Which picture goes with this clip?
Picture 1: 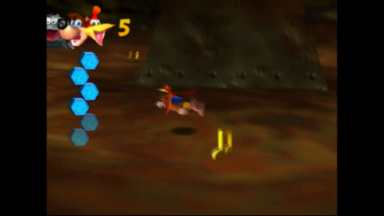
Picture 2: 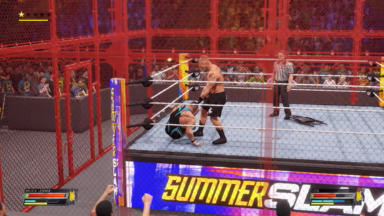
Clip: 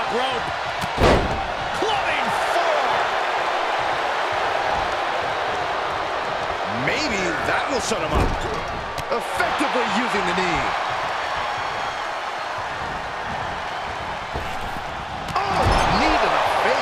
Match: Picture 2